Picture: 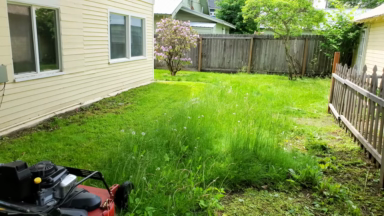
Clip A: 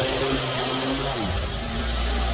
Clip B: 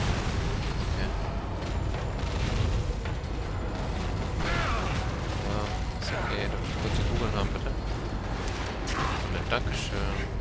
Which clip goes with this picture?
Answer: A